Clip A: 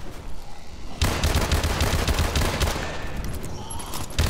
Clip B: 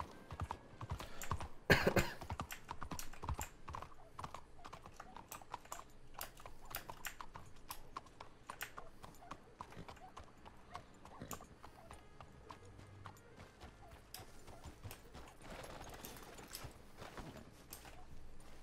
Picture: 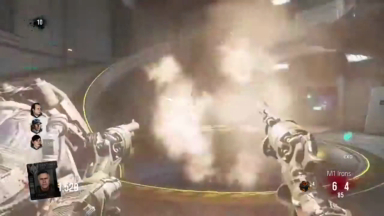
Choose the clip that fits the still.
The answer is A